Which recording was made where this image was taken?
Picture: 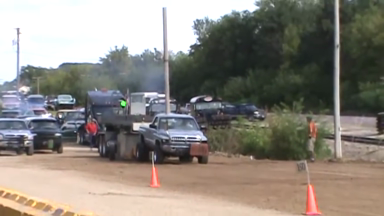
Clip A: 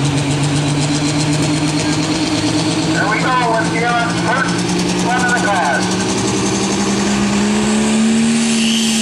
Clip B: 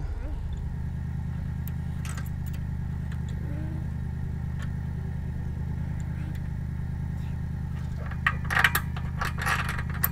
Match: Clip A